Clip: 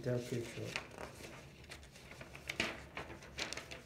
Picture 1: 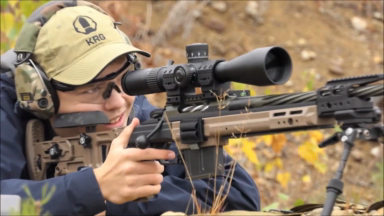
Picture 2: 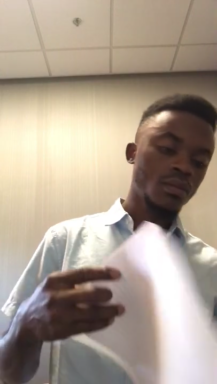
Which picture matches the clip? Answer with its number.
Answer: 2